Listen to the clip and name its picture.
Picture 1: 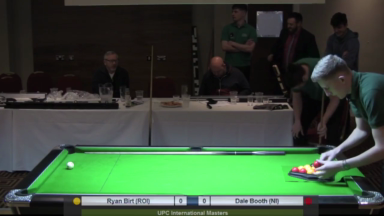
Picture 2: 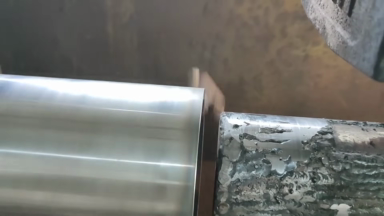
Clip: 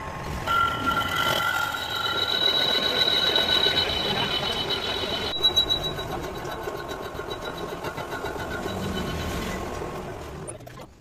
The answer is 2